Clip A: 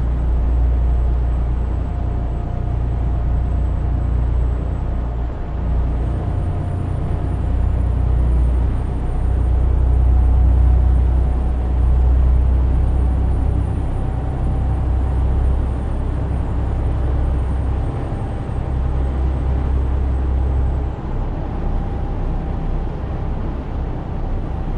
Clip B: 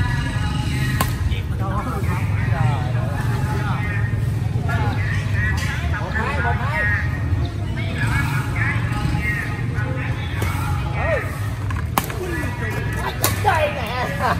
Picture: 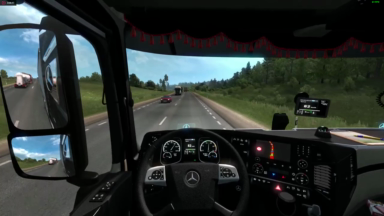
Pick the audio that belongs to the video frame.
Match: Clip A